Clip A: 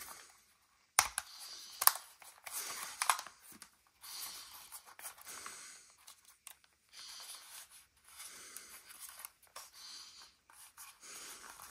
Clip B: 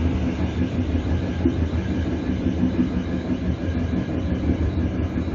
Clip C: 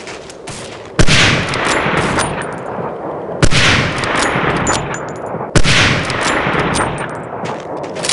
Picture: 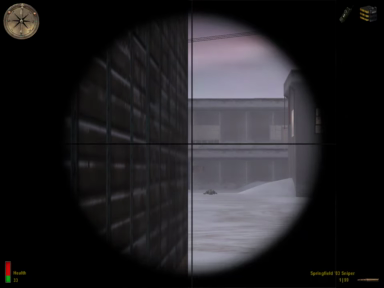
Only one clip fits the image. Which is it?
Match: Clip C